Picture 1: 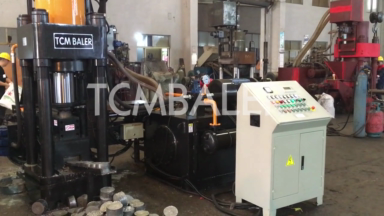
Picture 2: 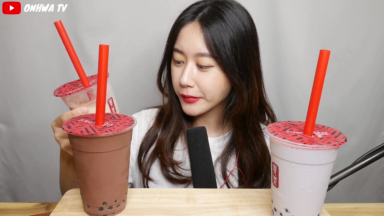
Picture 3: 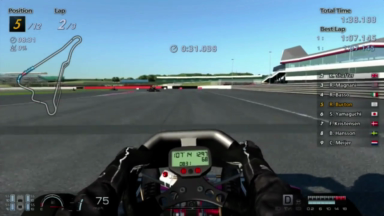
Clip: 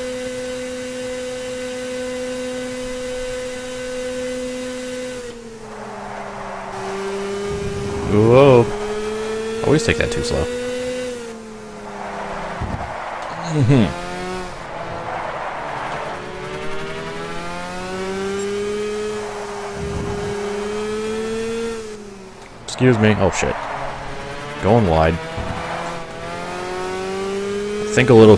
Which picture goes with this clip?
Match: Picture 3